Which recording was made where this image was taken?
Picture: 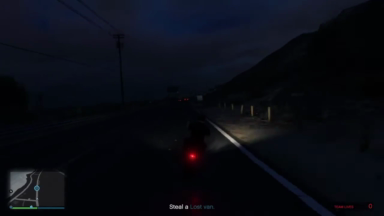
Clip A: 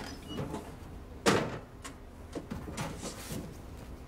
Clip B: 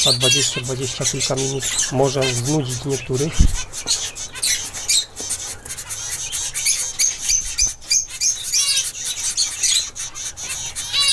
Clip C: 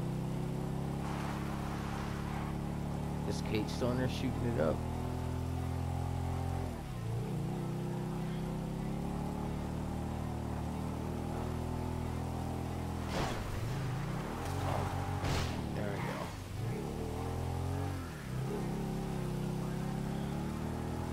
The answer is C